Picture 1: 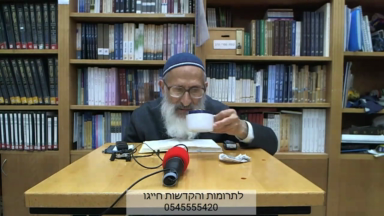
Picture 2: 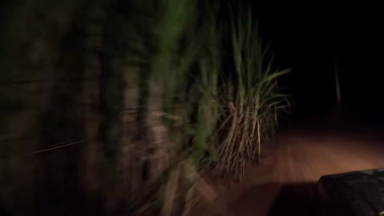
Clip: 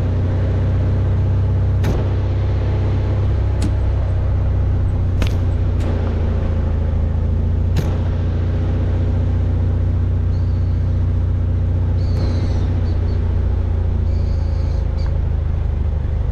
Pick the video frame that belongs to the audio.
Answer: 2